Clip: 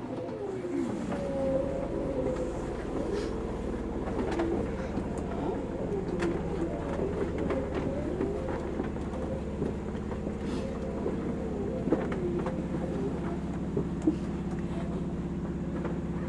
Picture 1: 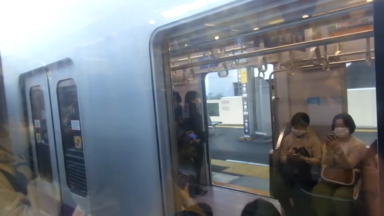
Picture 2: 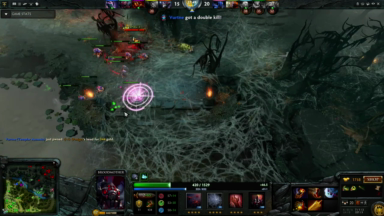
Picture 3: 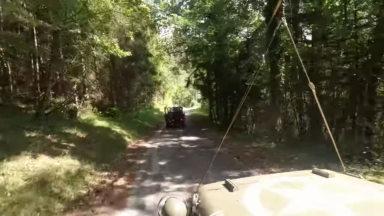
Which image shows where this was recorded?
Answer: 1